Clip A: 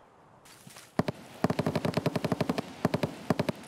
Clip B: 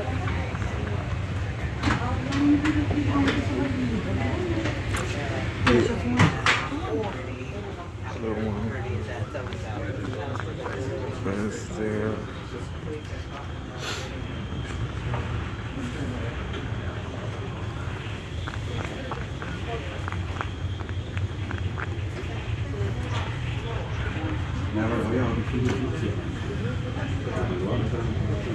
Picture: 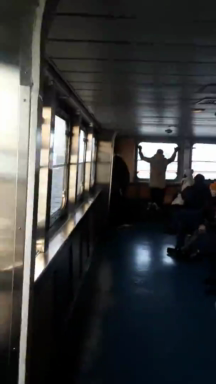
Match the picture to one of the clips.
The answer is B